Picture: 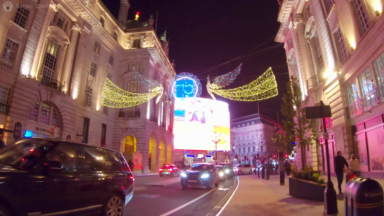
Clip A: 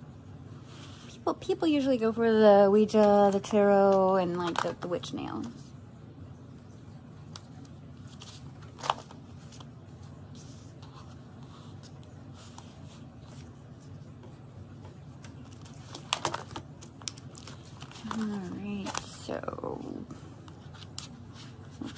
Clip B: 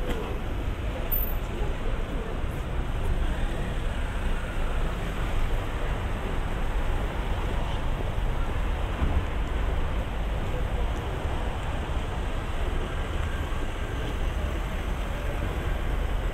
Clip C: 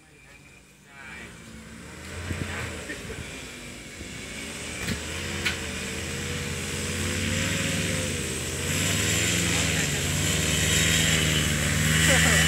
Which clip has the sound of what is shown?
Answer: B